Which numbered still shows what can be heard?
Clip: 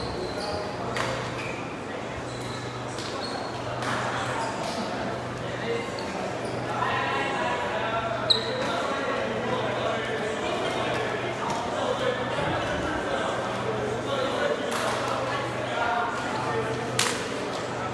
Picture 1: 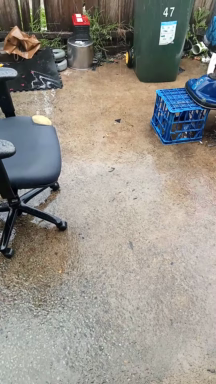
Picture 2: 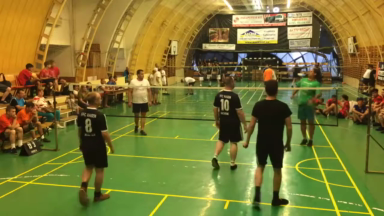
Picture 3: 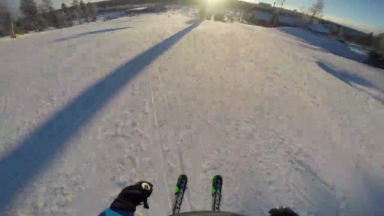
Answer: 2